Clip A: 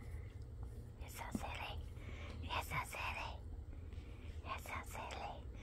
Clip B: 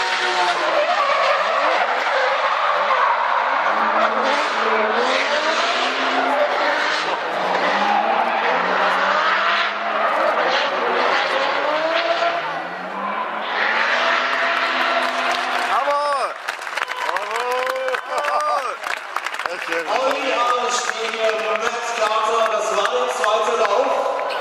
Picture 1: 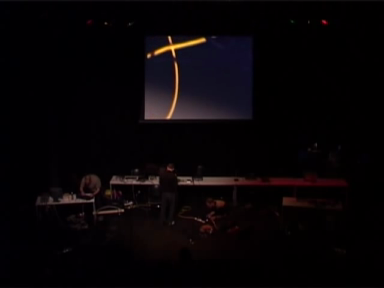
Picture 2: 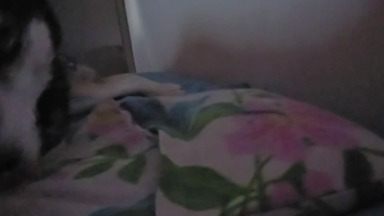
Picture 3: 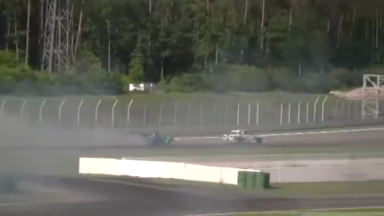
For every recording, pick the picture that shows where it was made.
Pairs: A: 2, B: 3